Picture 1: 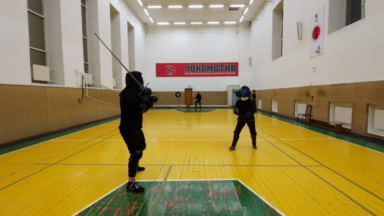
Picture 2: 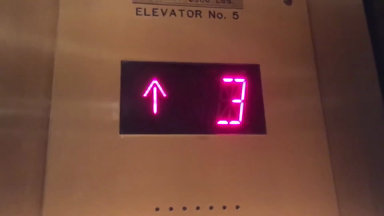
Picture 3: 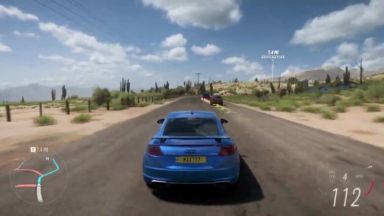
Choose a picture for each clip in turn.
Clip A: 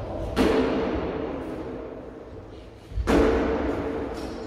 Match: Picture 1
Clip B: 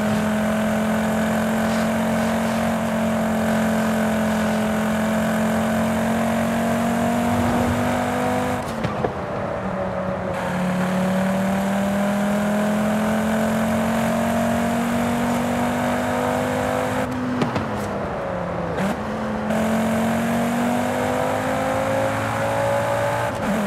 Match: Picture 3